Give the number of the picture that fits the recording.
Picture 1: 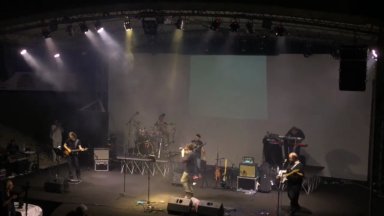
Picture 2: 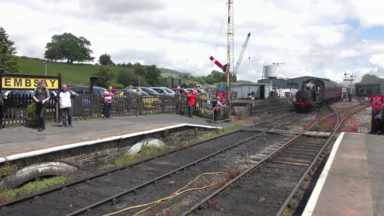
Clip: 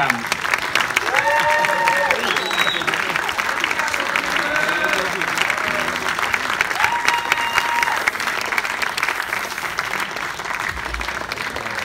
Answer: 1